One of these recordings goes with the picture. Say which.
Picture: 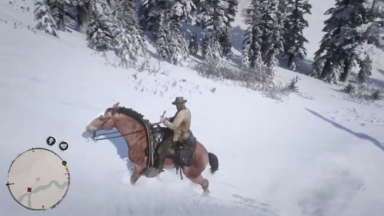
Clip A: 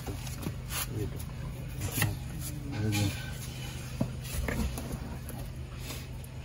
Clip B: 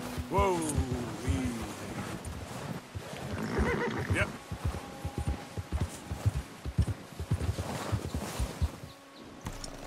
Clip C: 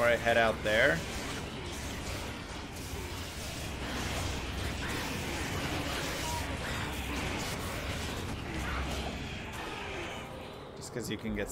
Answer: B